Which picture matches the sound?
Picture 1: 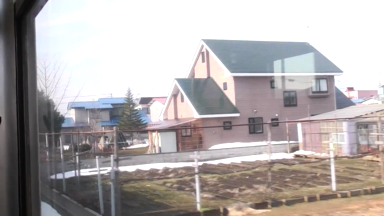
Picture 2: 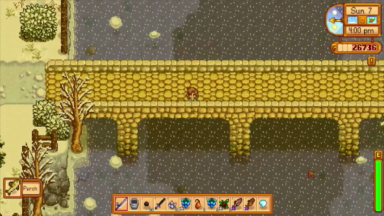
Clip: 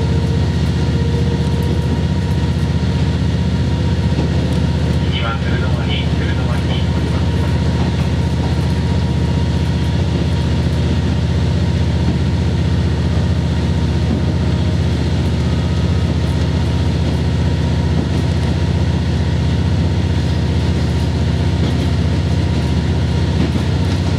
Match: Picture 1